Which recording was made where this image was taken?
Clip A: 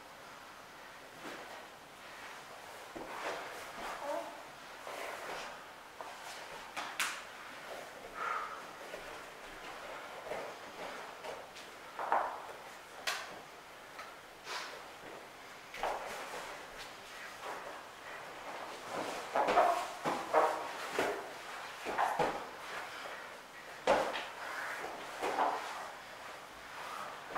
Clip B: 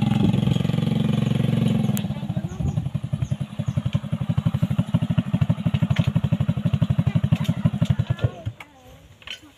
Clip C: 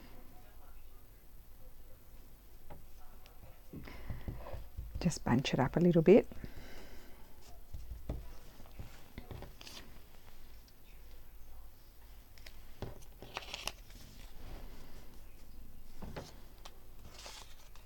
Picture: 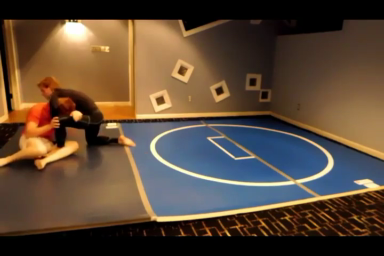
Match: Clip A